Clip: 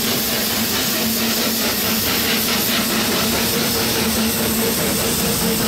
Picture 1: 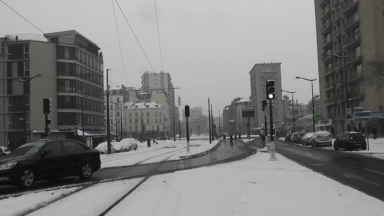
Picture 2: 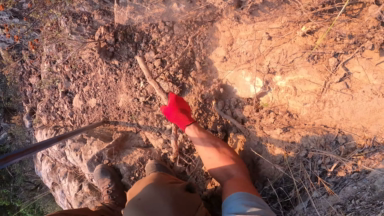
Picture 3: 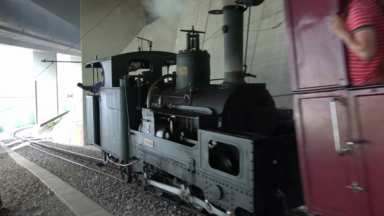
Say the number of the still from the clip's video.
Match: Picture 3